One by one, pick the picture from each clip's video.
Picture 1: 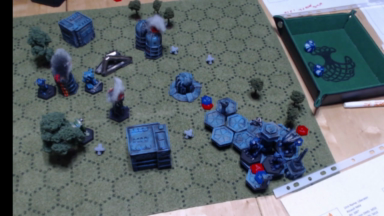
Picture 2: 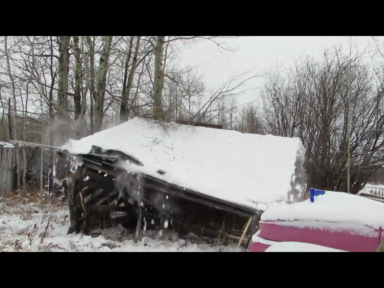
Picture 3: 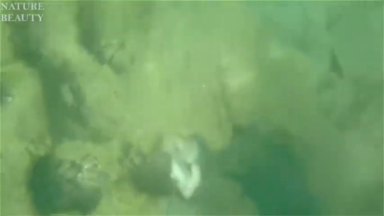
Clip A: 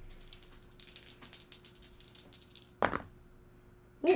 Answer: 1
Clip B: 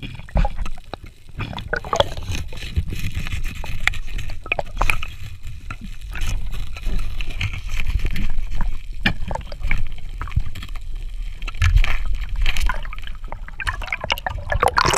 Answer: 3